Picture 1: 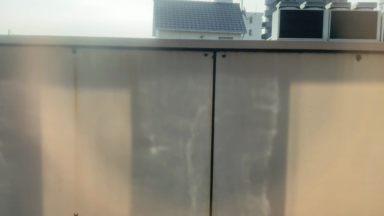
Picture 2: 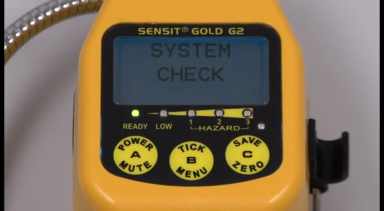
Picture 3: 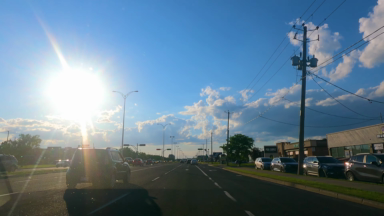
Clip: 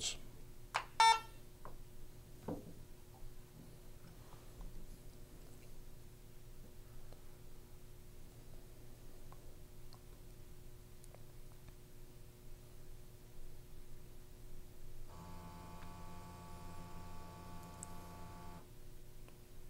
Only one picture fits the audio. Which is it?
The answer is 2